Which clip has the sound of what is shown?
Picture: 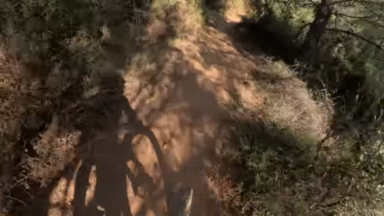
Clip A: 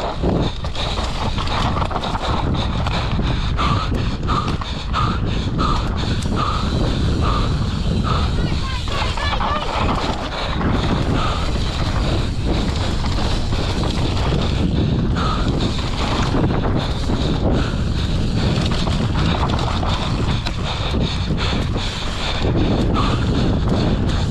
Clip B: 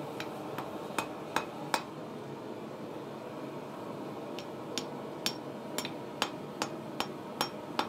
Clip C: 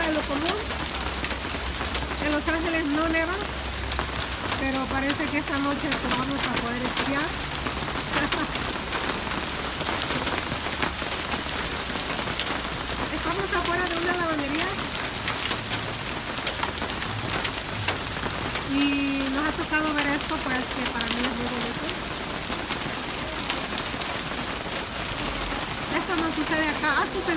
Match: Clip A